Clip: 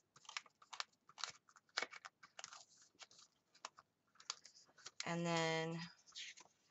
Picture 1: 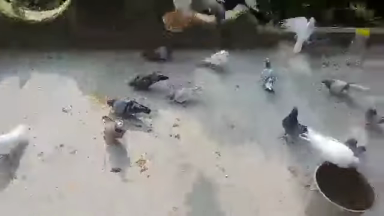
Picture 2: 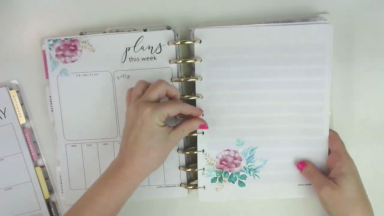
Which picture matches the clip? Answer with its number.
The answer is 2